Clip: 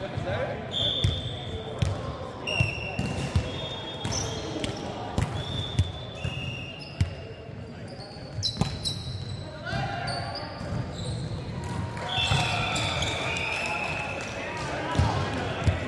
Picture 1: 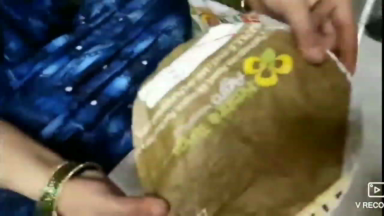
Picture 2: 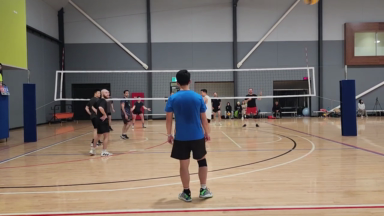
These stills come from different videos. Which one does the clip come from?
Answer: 2